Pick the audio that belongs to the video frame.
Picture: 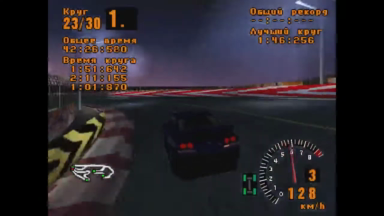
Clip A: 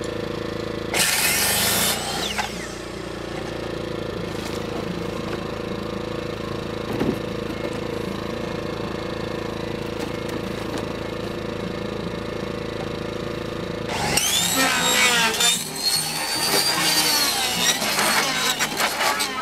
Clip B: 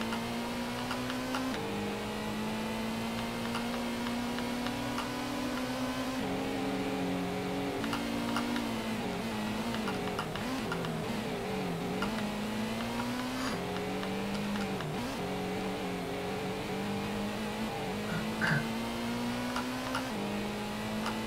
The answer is B